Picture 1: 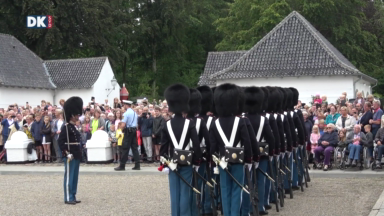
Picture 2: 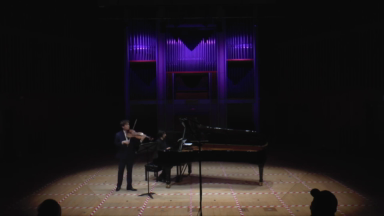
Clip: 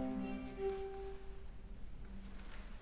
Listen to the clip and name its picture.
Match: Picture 2